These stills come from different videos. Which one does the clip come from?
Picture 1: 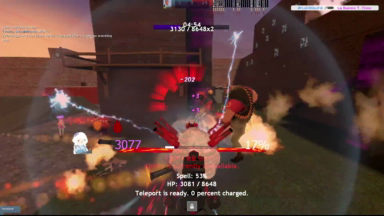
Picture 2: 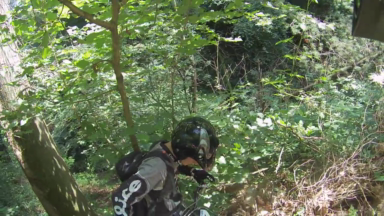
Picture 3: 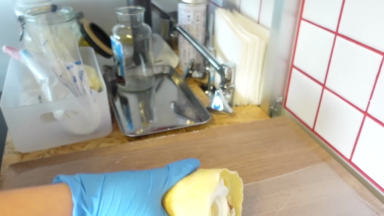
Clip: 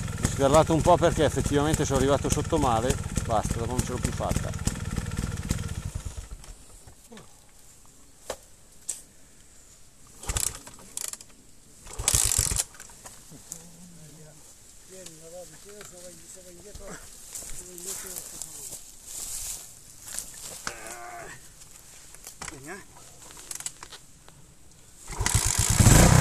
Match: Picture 2